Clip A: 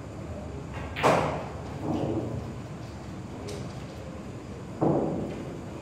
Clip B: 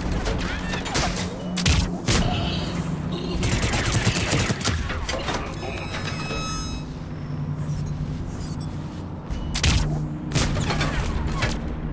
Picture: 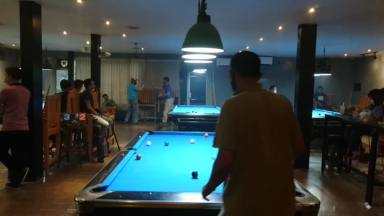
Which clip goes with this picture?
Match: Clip A